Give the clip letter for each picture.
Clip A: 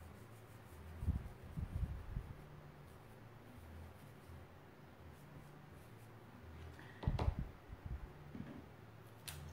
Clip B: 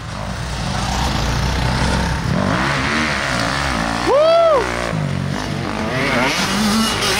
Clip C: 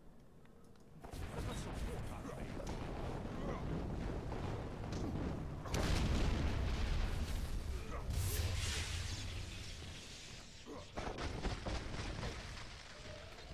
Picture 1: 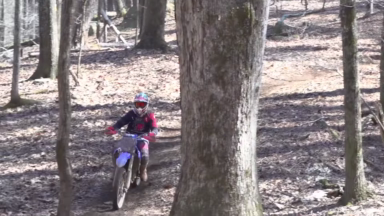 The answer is B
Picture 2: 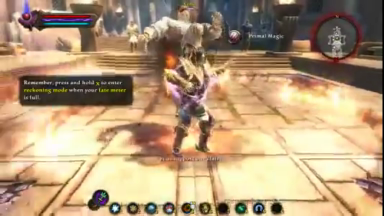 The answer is C